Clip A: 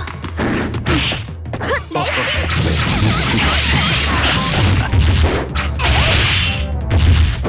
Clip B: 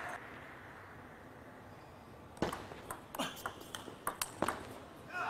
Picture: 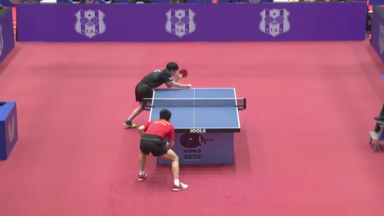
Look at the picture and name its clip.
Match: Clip B